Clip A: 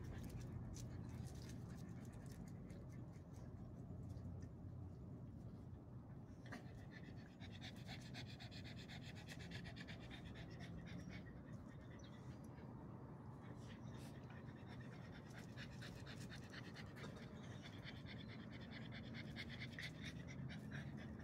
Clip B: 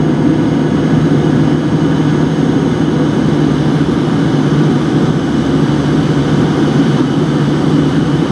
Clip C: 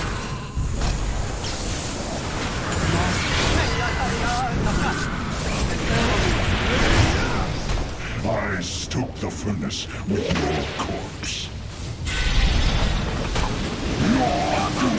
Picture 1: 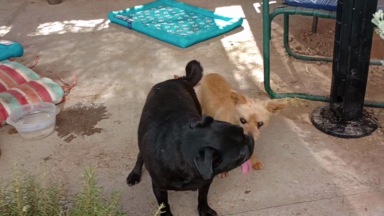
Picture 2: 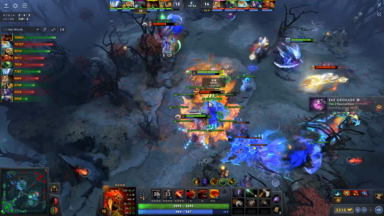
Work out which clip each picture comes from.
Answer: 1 A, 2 C